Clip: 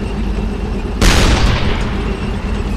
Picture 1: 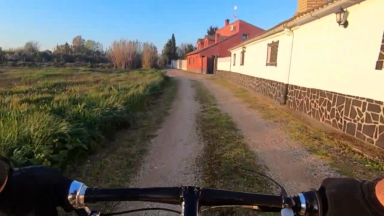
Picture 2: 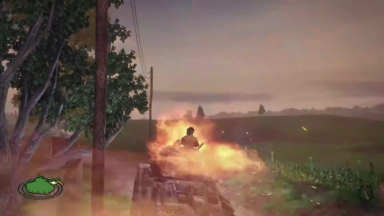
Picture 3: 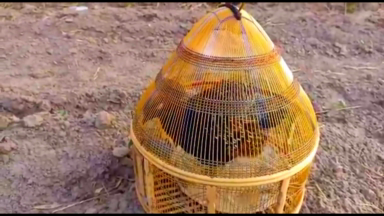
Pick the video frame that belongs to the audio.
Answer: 2